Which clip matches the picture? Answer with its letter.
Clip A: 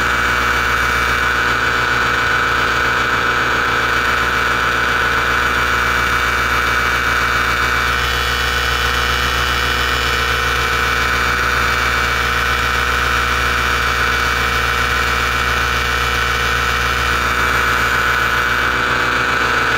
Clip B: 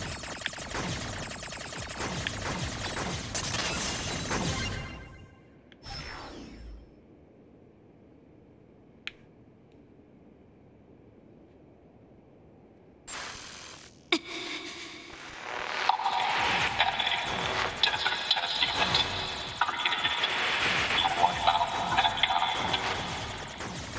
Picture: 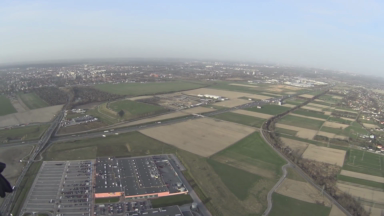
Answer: A